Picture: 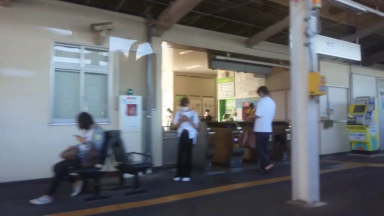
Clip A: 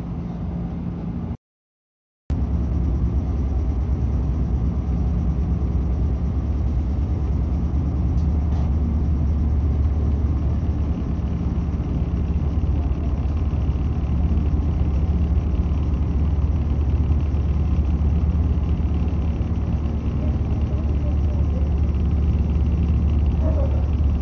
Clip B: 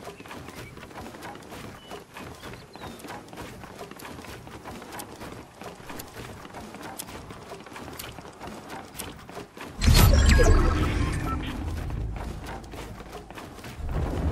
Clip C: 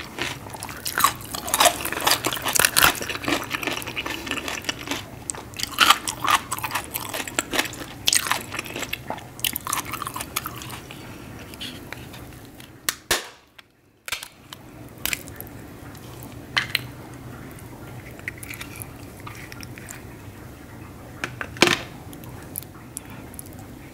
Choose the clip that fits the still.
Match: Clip A